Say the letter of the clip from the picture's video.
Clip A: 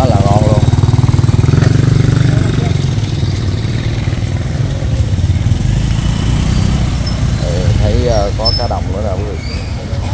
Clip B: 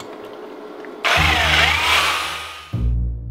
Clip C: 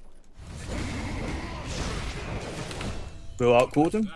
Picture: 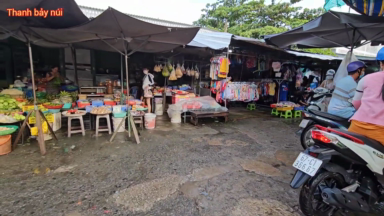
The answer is A